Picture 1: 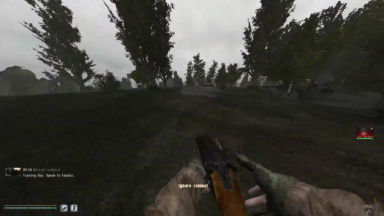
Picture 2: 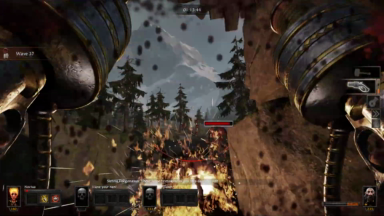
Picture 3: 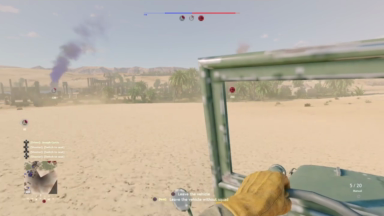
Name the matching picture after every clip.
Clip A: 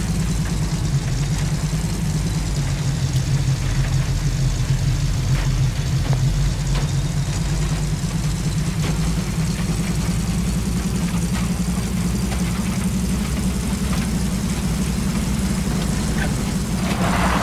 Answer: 3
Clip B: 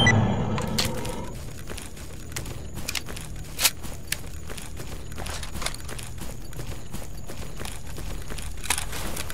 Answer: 1